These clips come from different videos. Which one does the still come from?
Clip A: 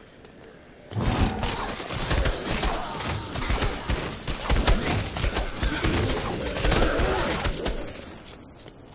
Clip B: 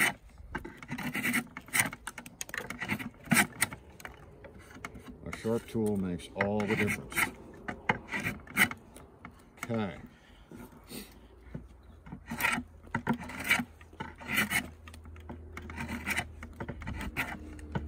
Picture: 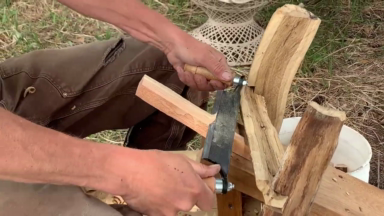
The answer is B